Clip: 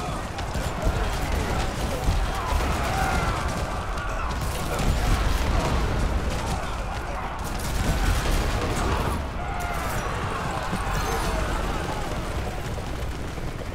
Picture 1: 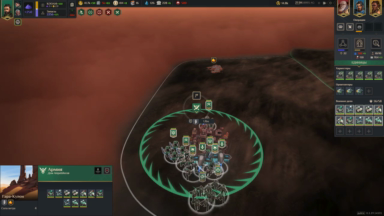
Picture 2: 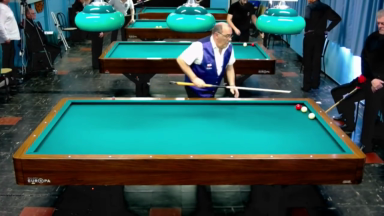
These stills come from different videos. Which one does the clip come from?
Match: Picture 1